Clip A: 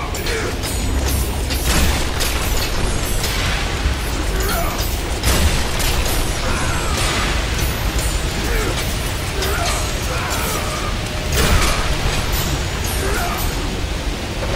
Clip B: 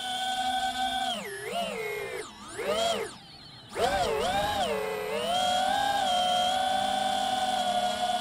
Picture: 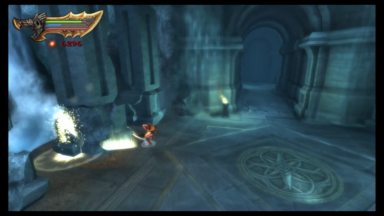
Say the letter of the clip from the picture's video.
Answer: A